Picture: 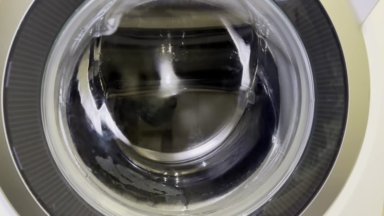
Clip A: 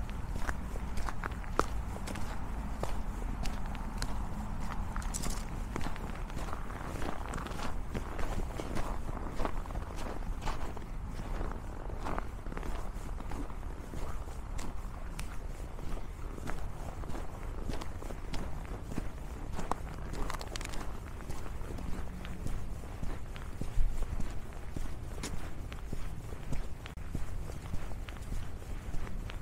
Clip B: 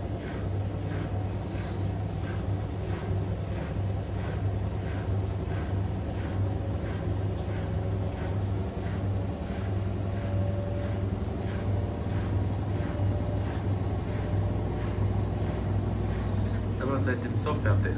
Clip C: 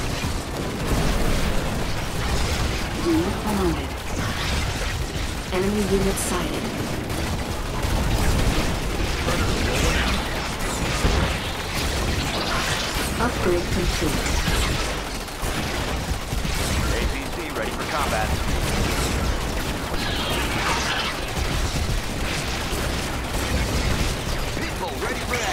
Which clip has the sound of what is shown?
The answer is B